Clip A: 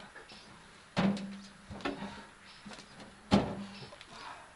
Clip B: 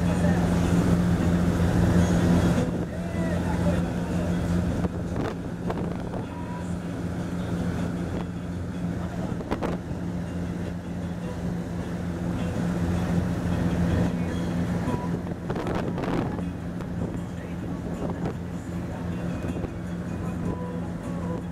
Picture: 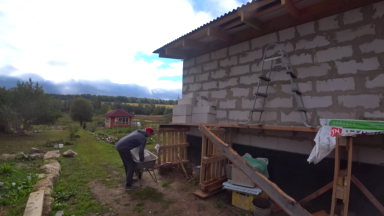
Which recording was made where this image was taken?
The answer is A